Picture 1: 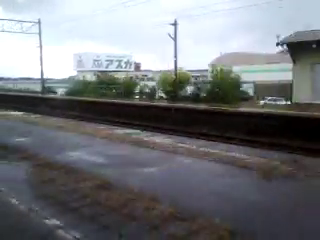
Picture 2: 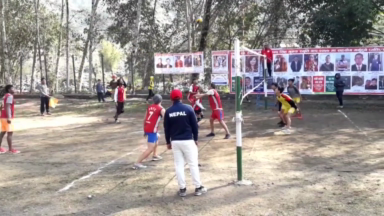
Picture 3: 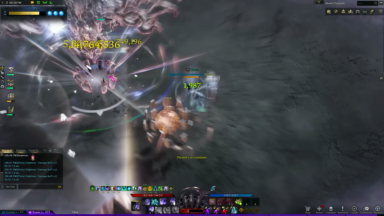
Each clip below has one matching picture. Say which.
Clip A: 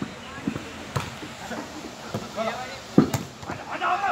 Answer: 2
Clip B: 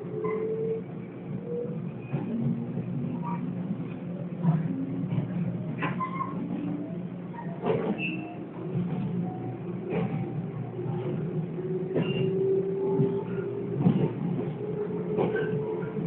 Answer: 1